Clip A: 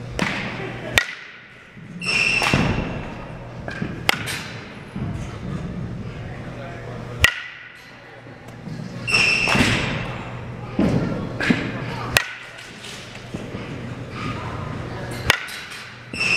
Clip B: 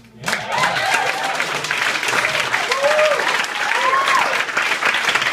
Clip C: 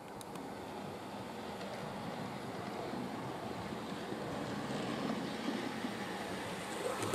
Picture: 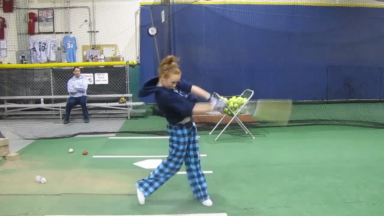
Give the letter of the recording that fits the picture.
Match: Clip A